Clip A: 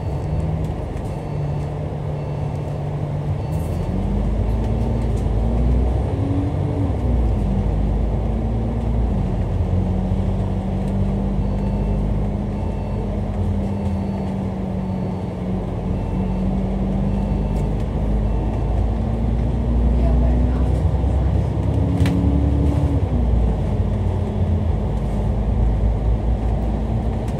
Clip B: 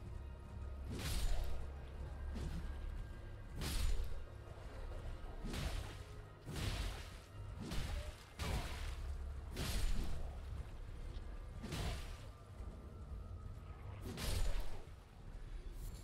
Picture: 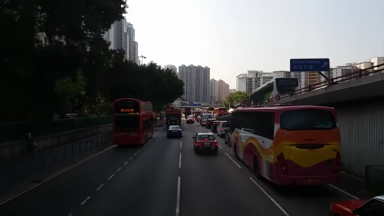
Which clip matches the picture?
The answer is A